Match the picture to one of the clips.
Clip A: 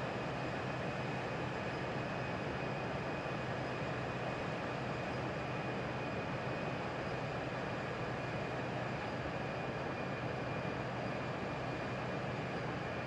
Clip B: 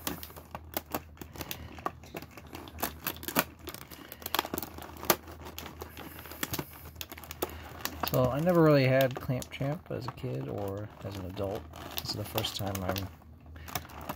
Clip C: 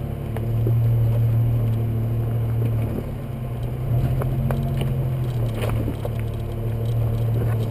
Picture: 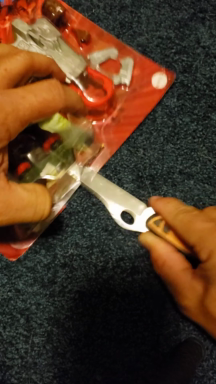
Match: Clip B